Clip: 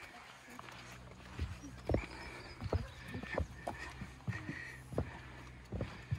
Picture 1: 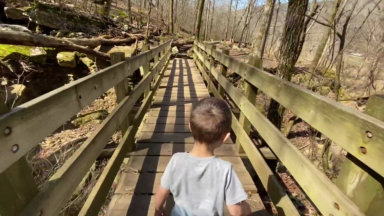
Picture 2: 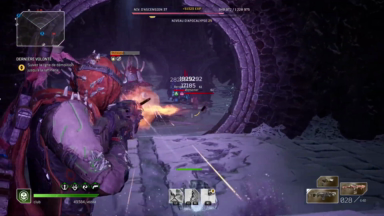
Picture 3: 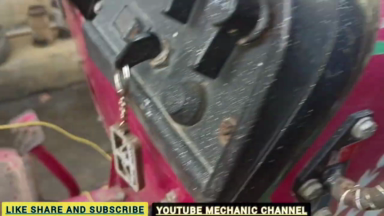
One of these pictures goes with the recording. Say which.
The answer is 1